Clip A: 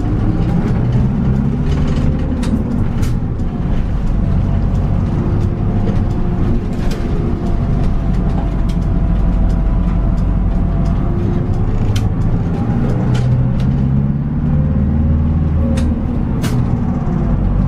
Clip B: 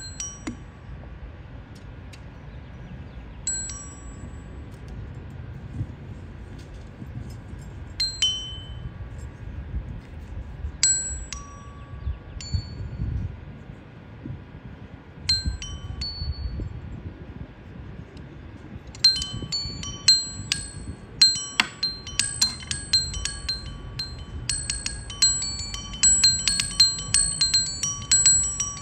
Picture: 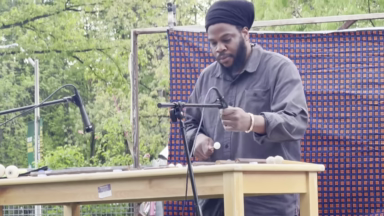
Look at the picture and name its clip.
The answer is B